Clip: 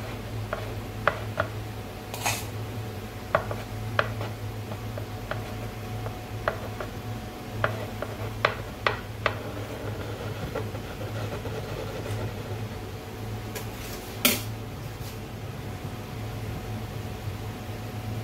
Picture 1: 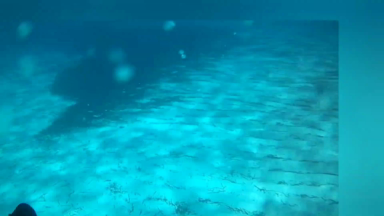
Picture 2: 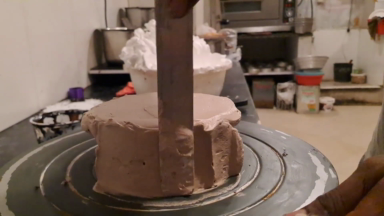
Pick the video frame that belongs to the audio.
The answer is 2